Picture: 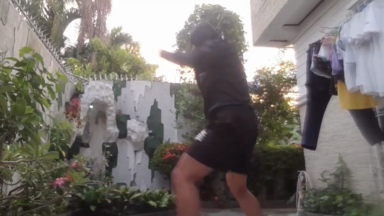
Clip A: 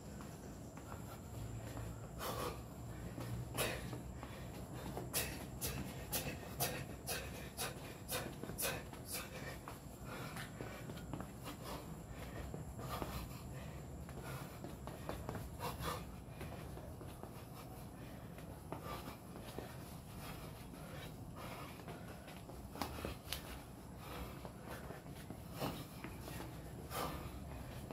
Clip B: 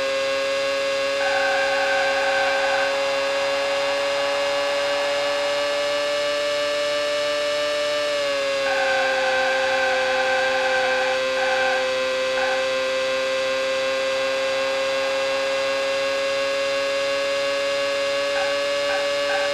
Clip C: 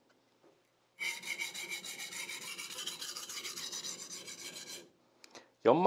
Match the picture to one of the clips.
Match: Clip A